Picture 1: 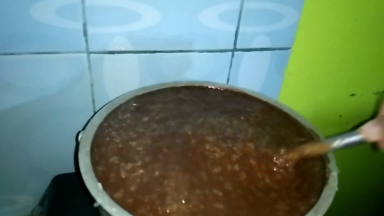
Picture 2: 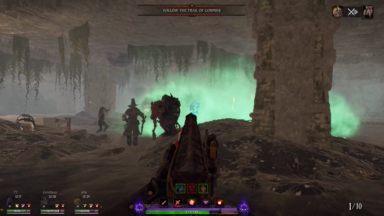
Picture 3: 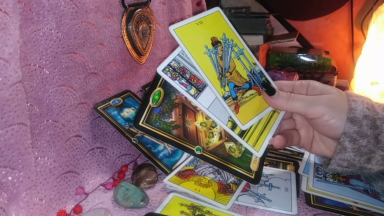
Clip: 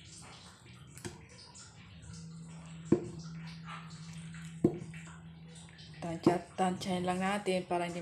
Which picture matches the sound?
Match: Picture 1